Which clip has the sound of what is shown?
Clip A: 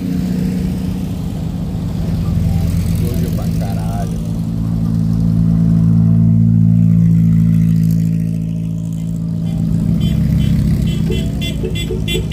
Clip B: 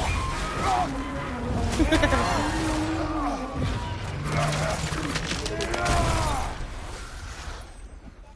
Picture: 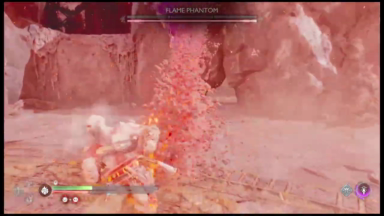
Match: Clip B